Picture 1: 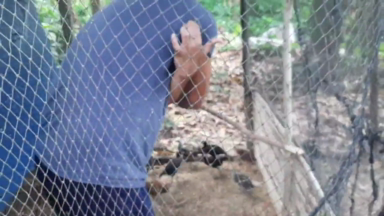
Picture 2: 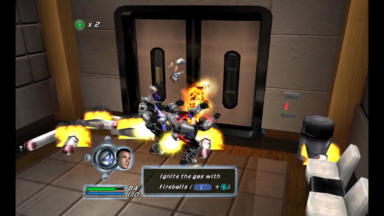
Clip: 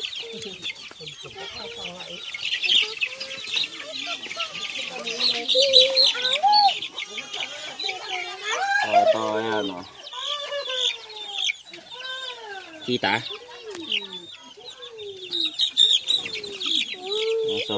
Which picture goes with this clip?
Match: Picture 1